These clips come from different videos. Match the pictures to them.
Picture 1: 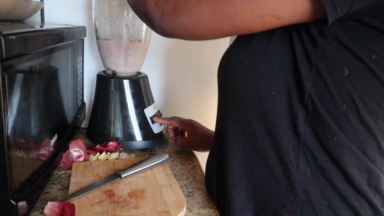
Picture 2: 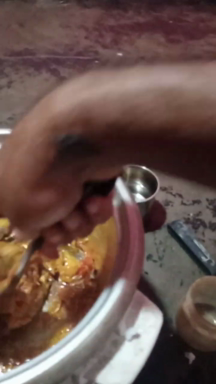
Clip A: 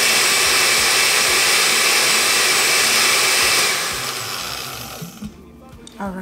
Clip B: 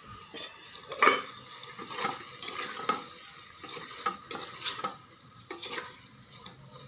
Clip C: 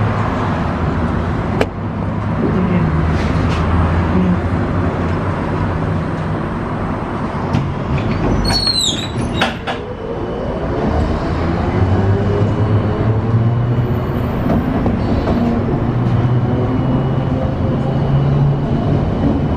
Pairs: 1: A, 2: B